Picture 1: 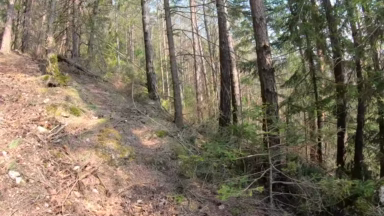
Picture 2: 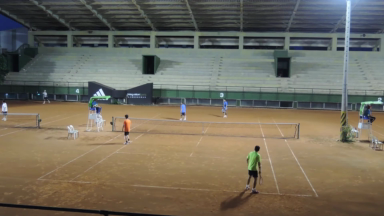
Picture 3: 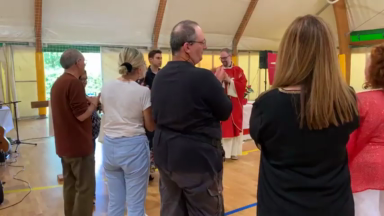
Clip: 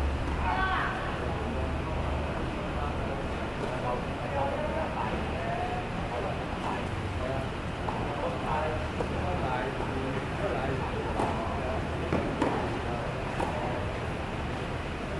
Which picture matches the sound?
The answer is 2